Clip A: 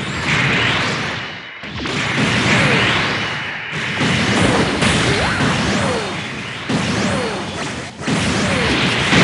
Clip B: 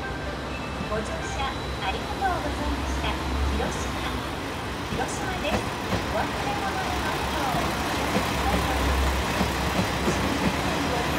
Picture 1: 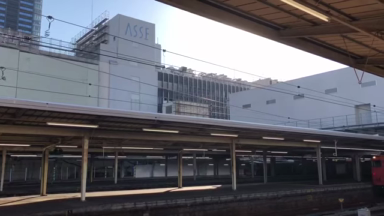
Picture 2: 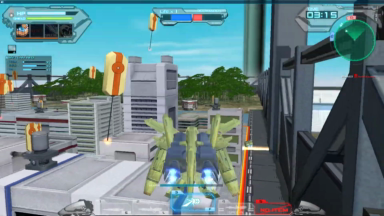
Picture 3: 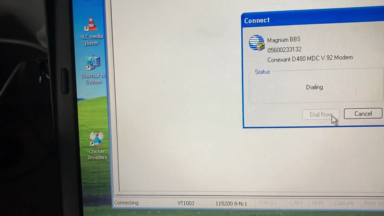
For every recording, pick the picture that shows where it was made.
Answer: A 2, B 1